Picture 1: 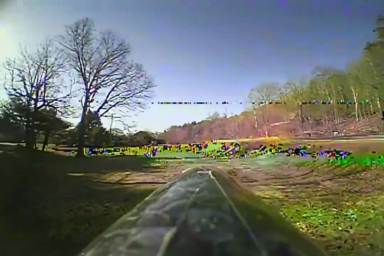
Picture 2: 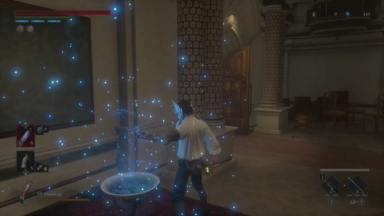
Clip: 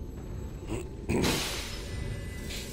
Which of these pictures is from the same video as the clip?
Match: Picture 2